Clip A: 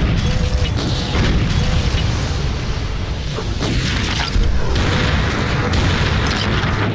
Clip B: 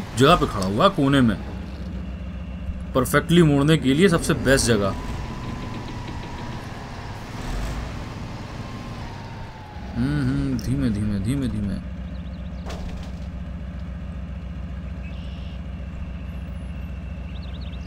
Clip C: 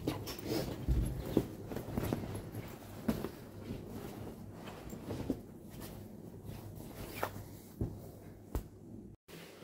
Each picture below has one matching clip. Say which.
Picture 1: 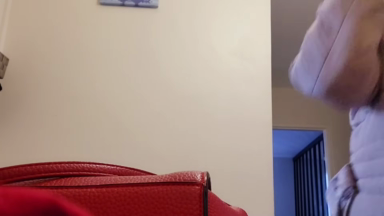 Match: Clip C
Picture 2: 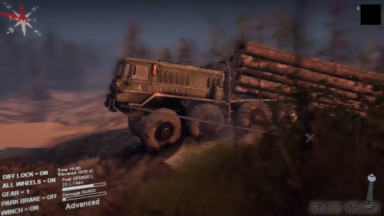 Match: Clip B